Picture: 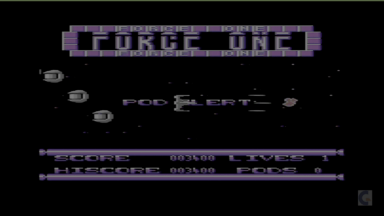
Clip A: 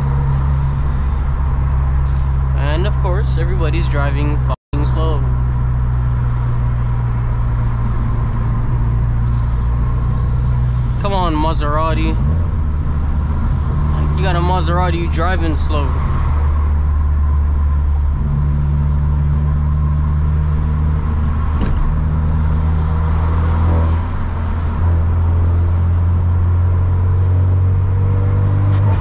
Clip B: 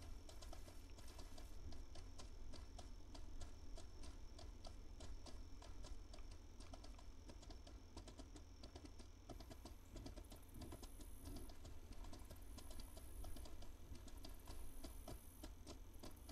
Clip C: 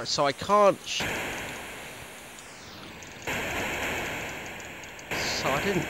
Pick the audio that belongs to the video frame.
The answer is C